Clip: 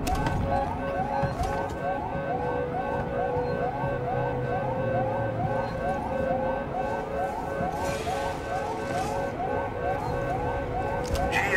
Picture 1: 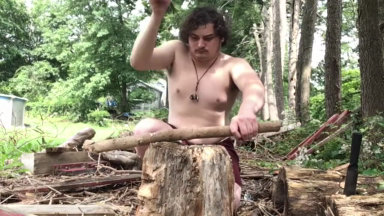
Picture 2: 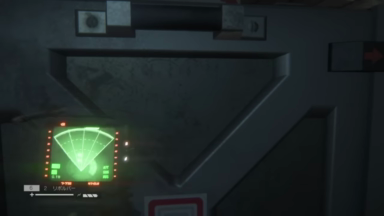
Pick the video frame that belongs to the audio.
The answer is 2